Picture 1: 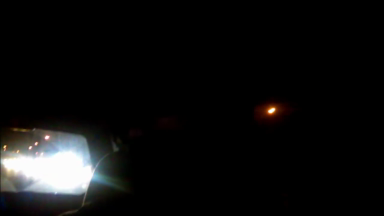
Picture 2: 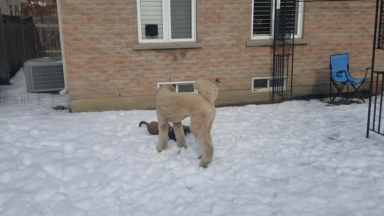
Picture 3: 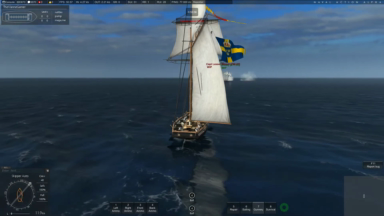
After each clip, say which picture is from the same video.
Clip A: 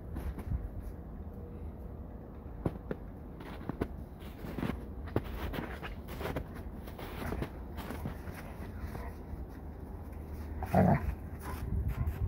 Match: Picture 2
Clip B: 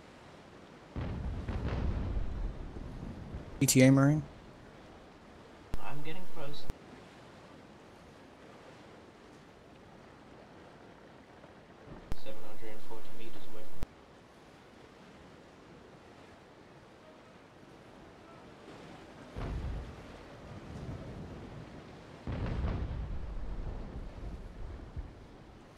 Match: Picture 3